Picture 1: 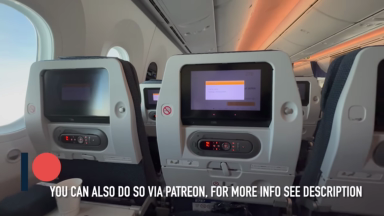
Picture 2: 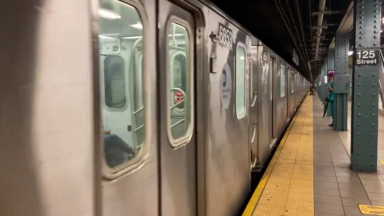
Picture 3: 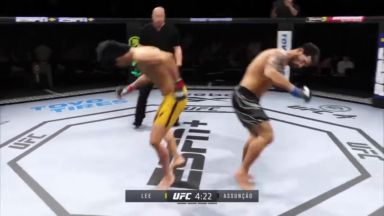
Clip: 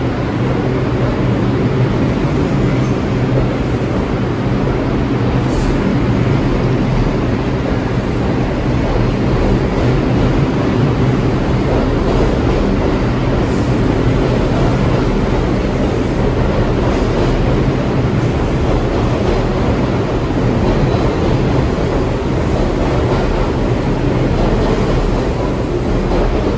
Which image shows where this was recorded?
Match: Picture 2